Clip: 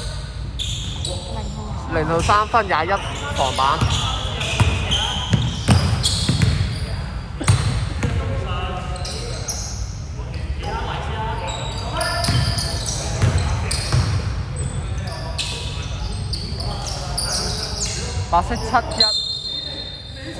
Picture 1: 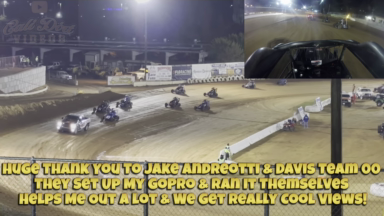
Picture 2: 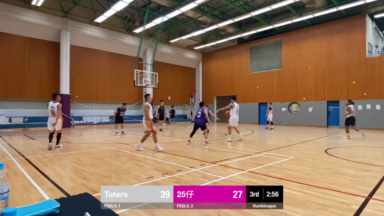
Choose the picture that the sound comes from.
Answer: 2